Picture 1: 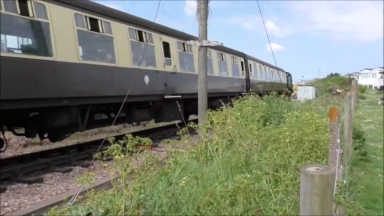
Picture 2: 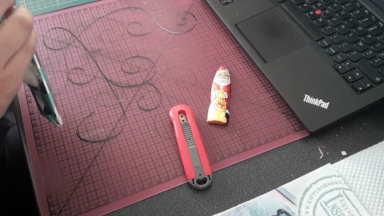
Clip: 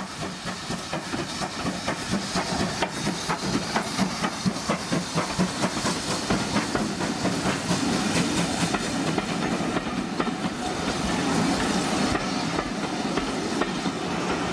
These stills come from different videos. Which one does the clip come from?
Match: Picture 1